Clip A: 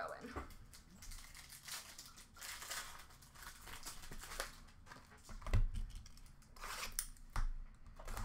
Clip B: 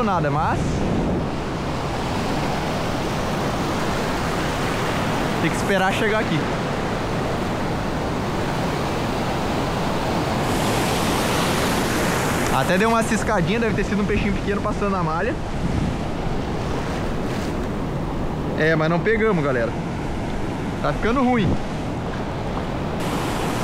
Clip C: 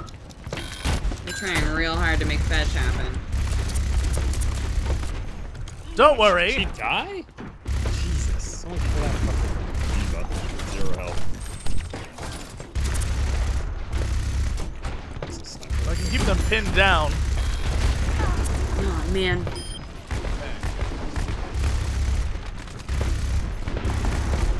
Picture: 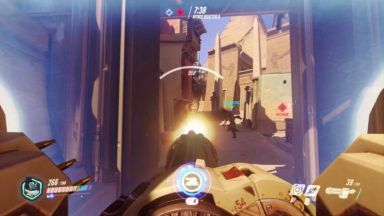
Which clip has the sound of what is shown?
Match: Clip C